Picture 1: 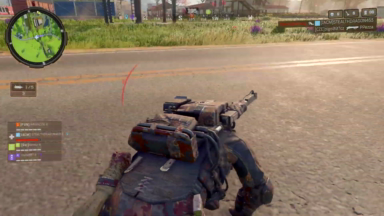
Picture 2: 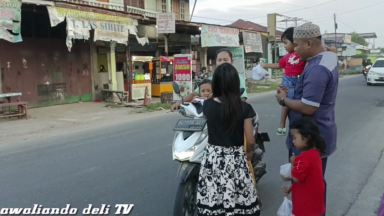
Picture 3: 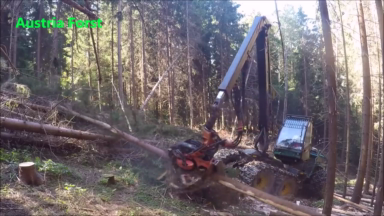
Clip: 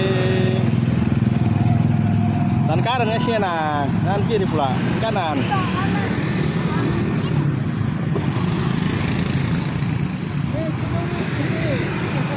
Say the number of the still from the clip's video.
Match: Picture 2